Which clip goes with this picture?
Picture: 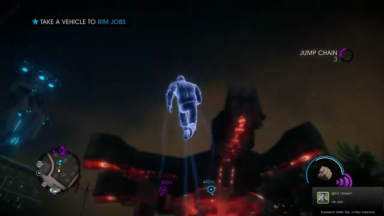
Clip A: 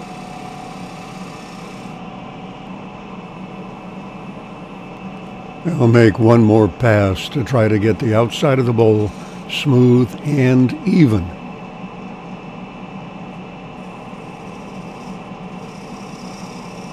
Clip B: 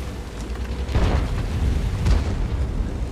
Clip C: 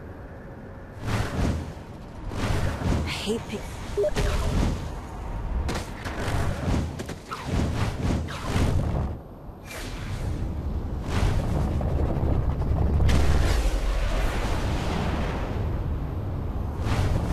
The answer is C